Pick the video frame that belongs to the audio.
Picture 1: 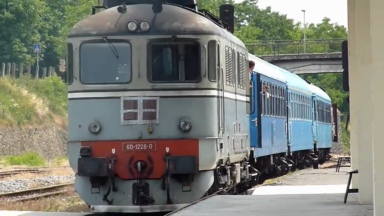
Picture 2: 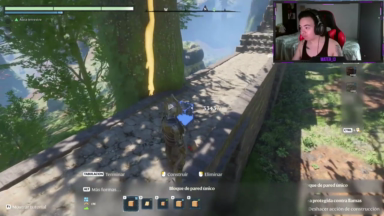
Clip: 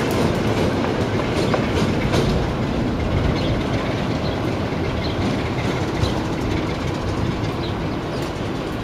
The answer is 1